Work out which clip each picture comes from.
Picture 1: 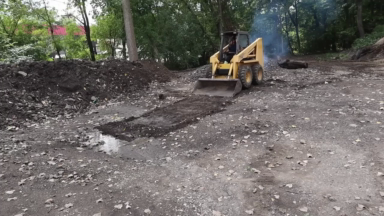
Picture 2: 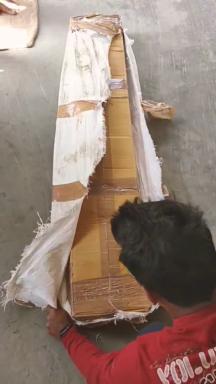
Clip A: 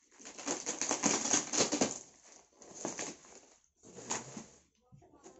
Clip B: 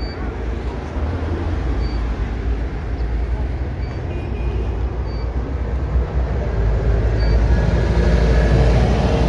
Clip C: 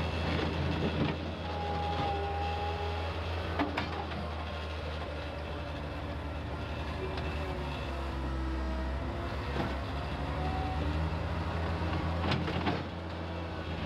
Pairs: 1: C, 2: A